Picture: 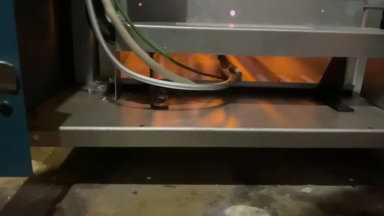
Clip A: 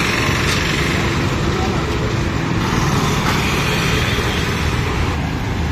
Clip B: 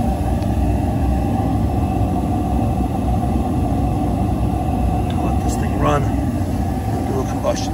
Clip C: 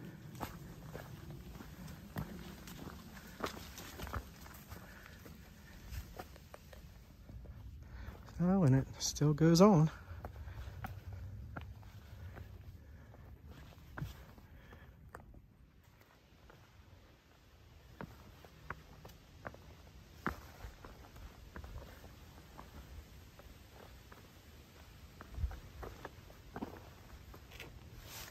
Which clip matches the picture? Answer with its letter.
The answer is B